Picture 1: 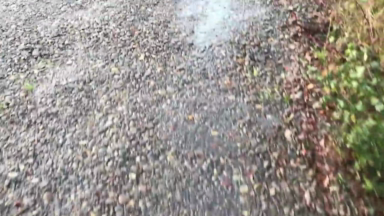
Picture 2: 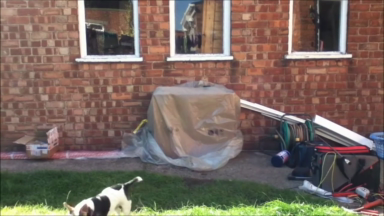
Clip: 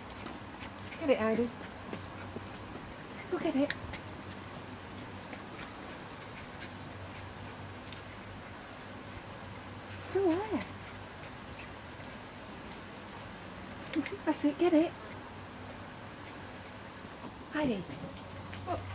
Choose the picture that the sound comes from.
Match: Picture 2